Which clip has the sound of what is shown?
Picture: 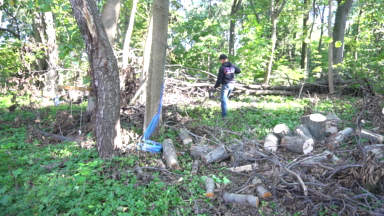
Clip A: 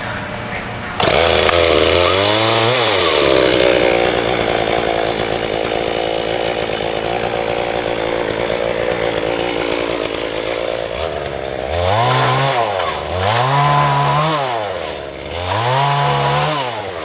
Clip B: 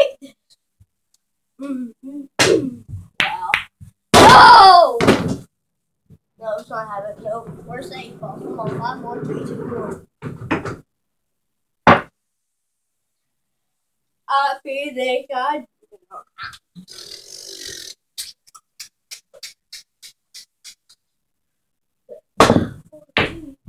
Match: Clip A